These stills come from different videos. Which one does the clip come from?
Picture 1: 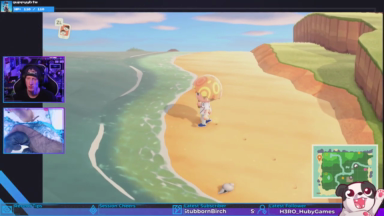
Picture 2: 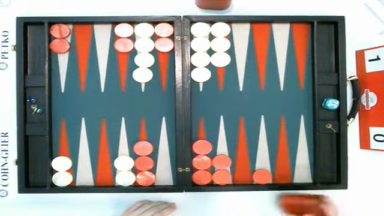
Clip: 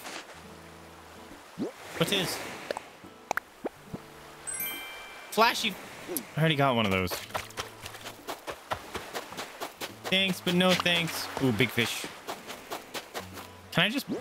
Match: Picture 1